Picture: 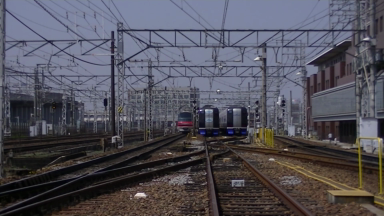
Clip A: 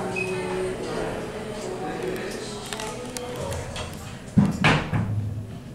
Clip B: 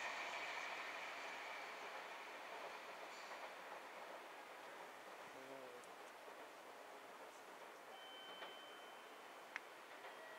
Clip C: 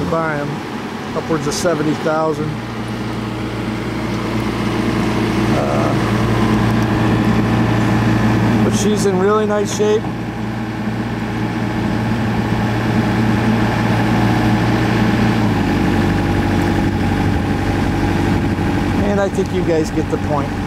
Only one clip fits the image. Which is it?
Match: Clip B